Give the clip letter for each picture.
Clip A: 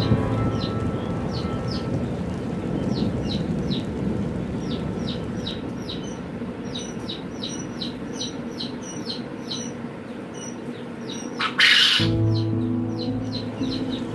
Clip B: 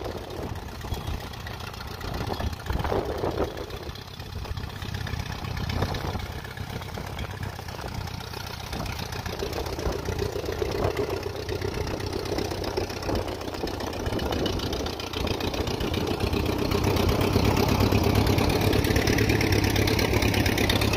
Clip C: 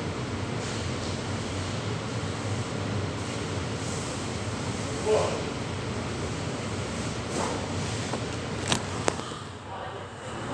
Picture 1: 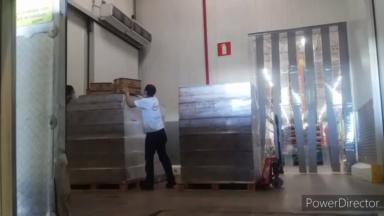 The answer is C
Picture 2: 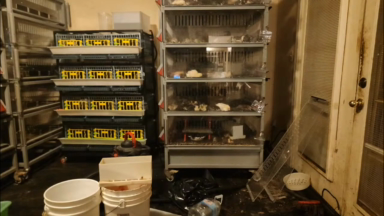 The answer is A